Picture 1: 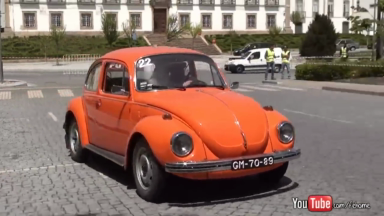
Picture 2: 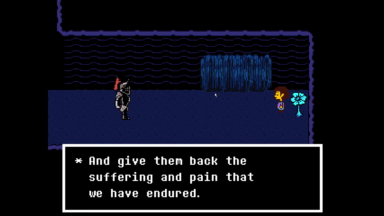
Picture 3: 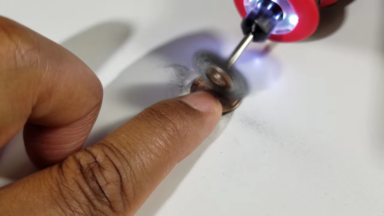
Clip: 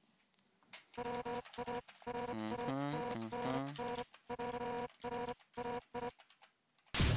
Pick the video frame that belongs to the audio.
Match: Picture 2